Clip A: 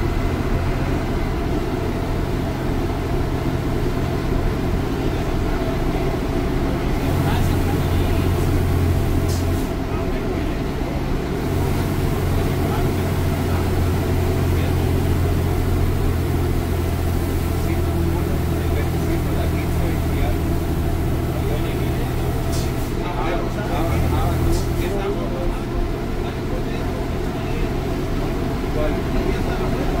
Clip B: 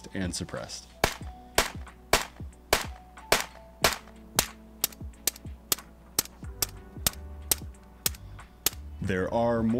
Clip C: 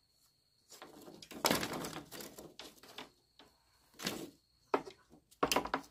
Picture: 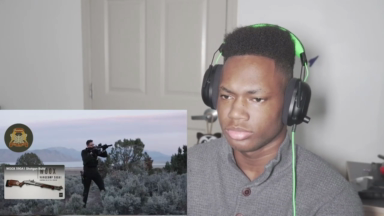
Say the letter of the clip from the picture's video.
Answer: B